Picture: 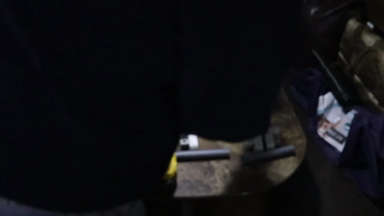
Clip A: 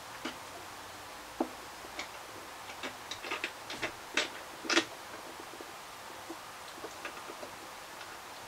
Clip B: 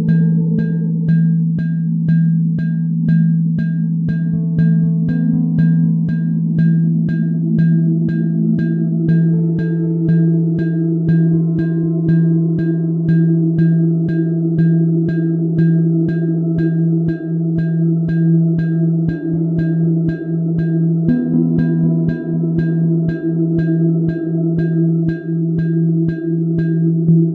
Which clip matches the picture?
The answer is A